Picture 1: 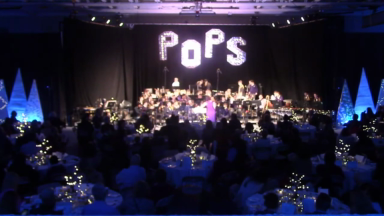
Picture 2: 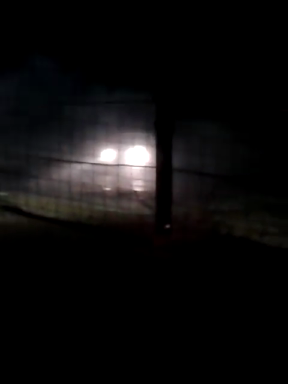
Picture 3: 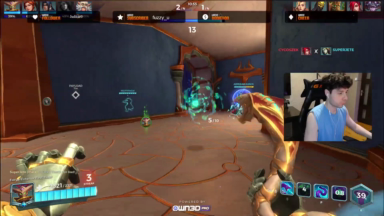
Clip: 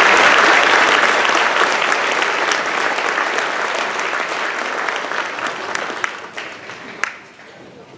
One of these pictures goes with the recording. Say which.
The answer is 1